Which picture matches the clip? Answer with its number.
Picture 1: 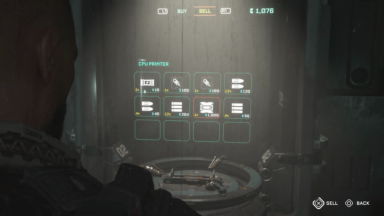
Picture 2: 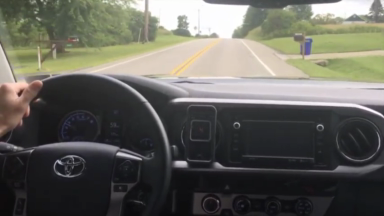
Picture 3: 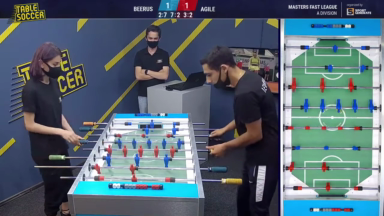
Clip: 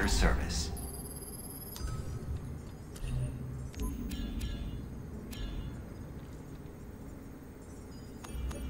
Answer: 1